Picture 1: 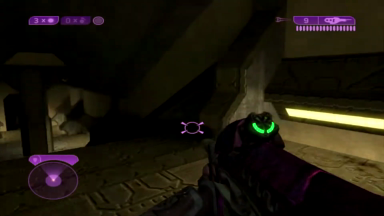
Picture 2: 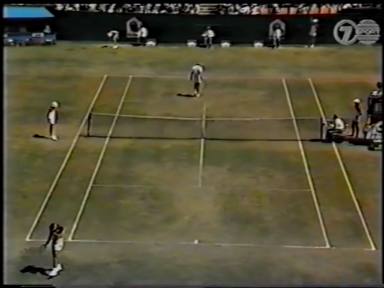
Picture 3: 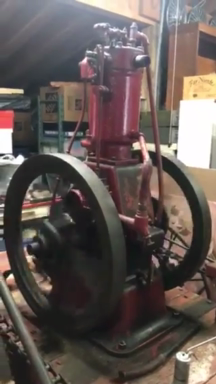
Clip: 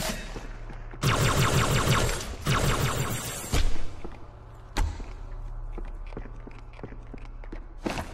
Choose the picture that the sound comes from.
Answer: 1